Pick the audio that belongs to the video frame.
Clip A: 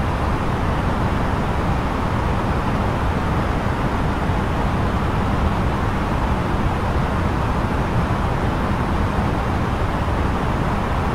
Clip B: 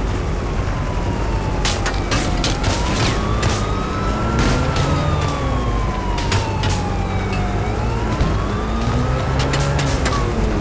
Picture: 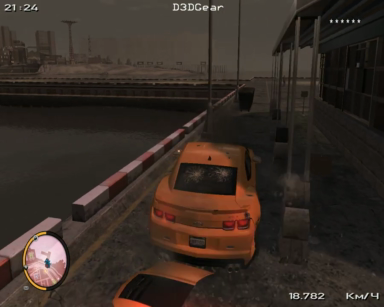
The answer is B